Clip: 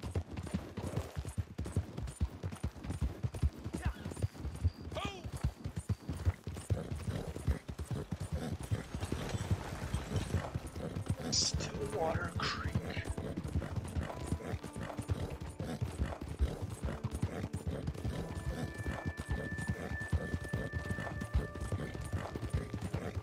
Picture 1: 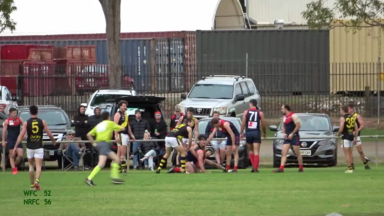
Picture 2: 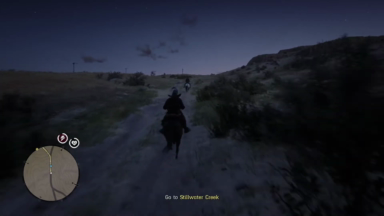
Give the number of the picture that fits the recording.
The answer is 2